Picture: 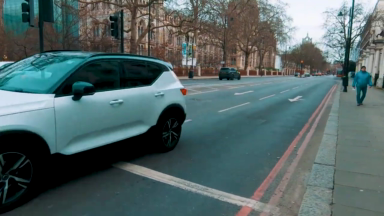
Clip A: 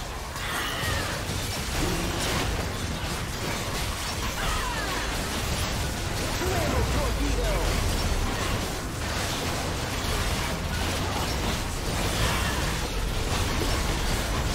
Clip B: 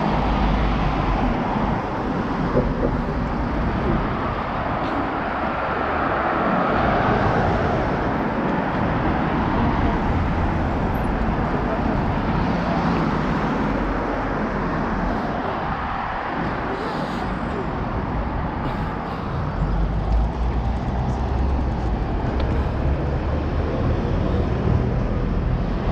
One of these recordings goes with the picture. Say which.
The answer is B